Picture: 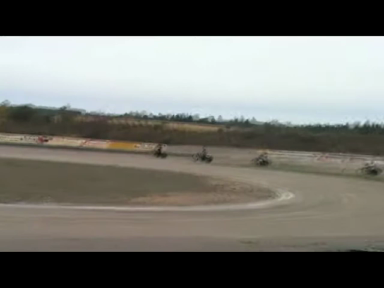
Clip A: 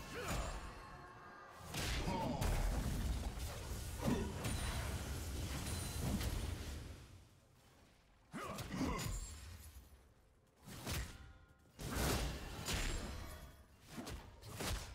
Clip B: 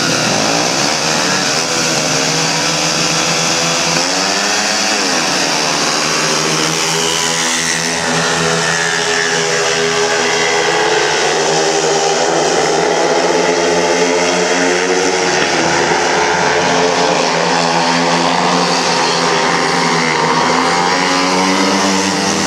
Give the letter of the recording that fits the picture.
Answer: B